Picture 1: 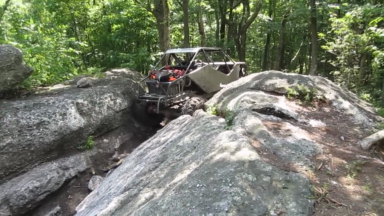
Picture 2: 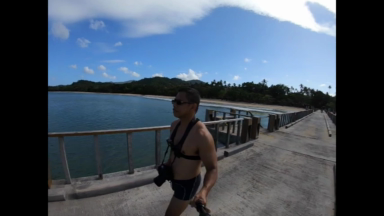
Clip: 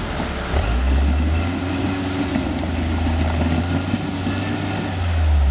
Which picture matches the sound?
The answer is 1